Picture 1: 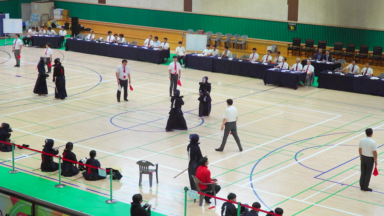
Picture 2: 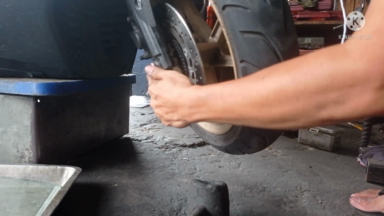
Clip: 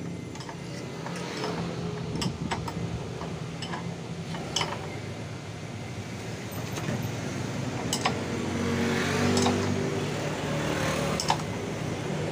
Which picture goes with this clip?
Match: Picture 2